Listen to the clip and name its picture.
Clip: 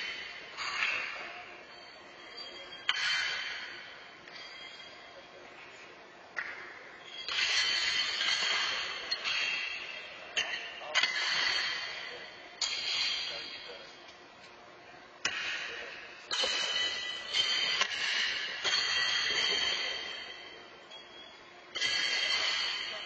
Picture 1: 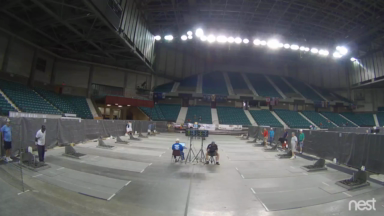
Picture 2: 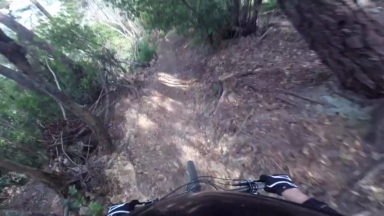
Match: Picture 1